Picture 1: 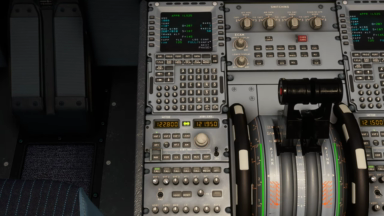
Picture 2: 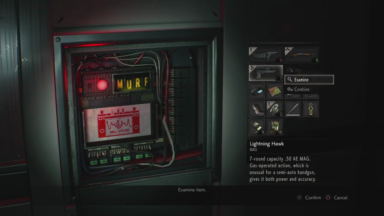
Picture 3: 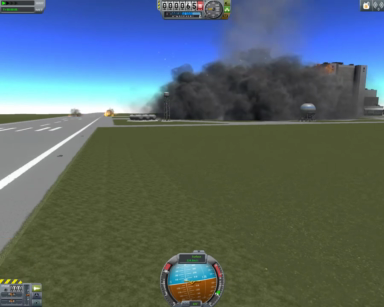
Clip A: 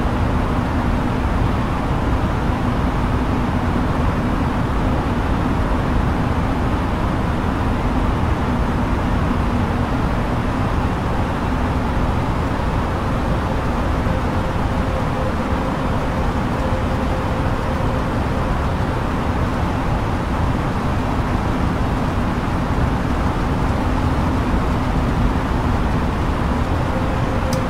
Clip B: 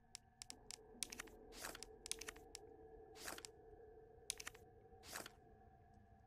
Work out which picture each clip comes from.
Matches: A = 1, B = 2